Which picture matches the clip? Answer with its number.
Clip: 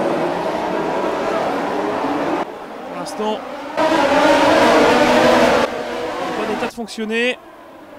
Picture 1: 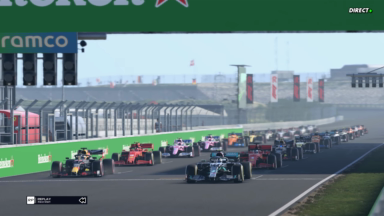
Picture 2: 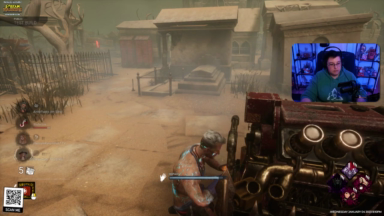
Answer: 1